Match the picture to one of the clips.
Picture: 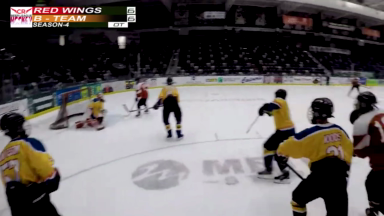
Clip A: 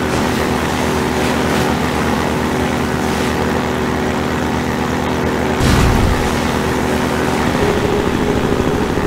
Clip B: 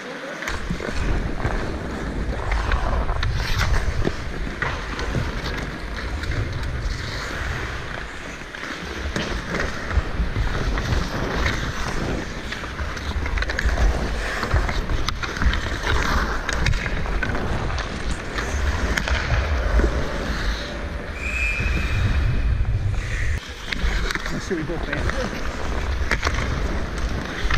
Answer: B